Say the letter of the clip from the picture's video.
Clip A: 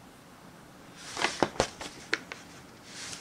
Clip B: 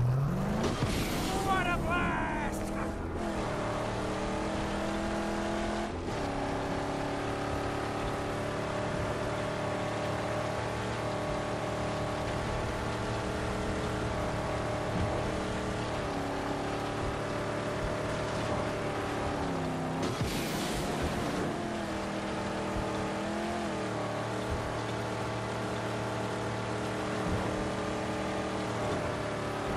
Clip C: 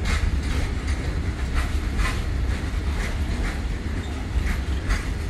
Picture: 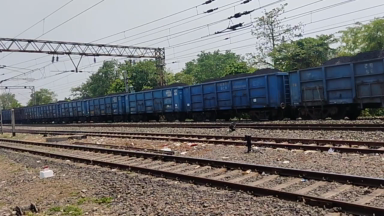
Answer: C